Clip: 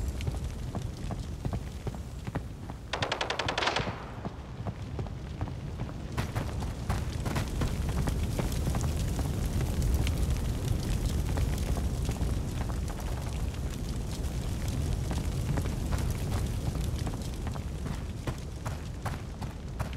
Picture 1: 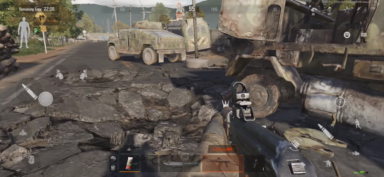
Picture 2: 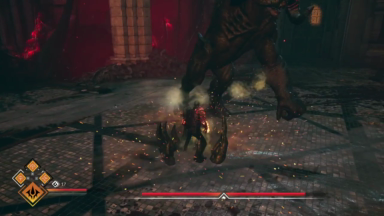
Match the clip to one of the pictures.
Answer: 1